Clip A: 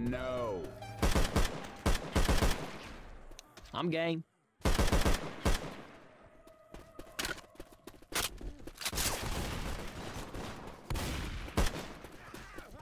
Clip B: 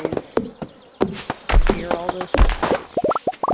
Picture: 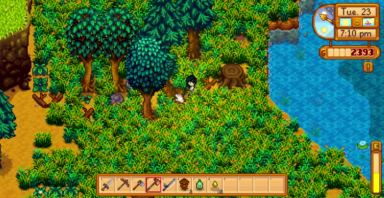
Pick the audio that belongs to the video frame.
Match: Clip B